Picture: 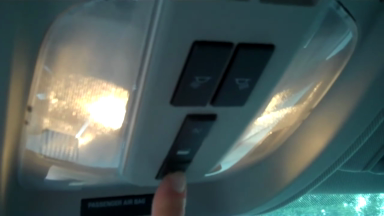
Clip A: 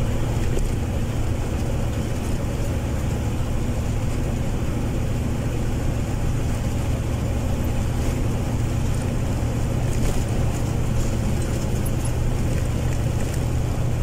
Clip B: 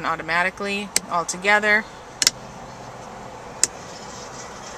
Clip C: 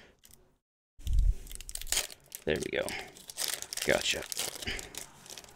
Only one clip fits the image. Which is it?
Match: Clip B